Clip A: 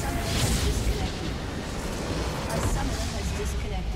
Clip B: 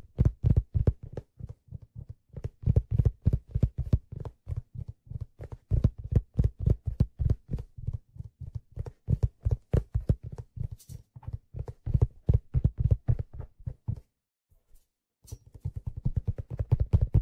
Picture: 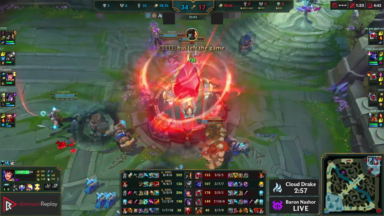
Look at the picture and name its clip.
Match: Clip A